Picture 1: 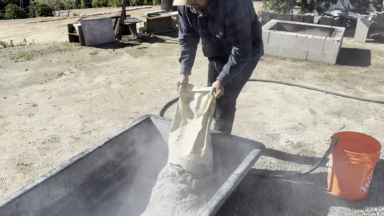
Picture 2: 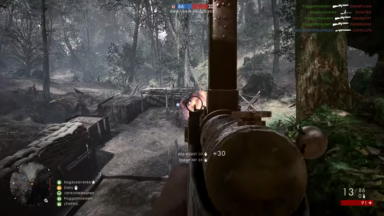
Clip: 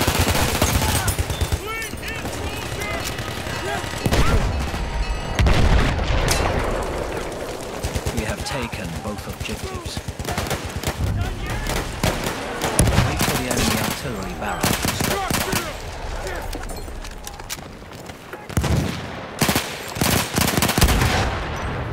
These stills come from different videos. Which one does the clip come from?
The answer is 2